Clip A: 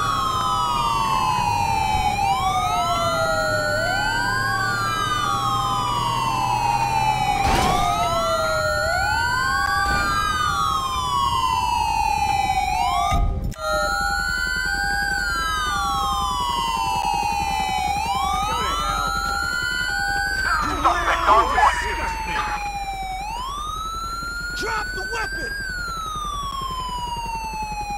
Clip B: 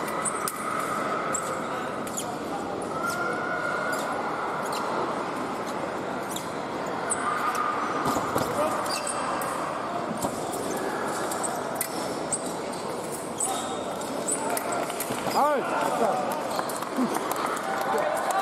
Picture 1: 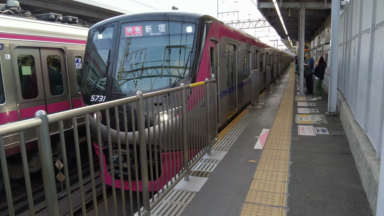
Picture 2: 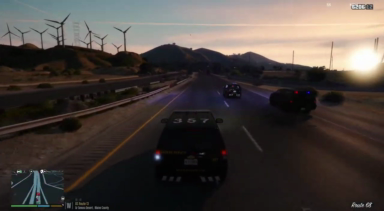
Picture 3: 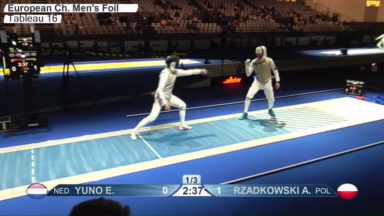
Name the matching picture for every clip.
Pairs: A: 2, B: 3